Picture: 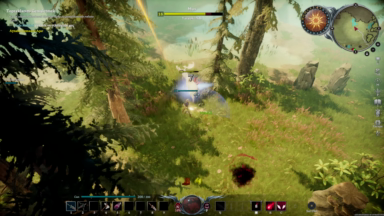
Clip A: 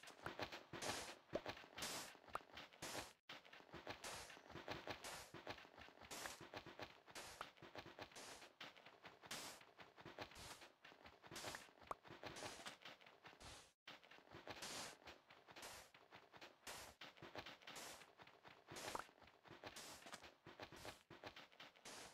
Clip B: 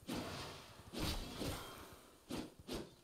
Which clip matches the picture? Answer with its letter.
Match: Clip B